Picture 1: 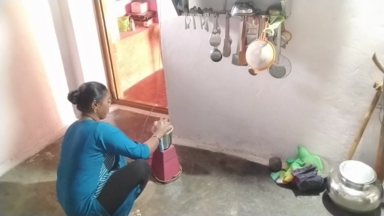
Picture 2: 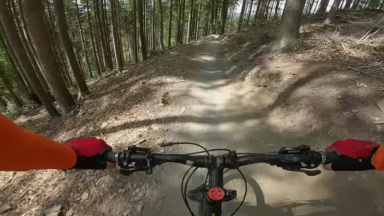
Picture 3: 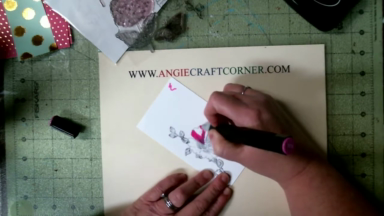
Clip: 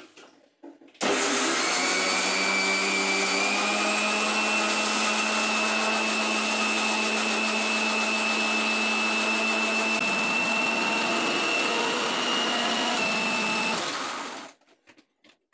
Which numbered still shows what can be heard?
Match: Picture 1